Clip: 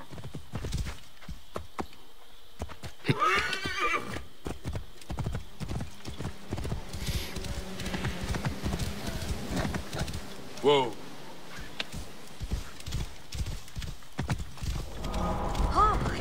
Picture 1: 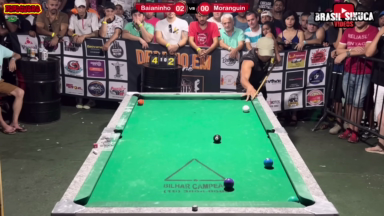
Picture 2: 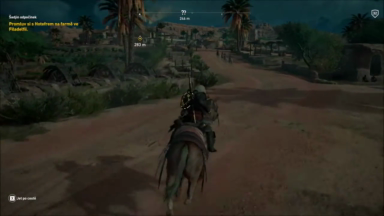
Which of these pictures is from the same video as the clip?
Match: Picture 2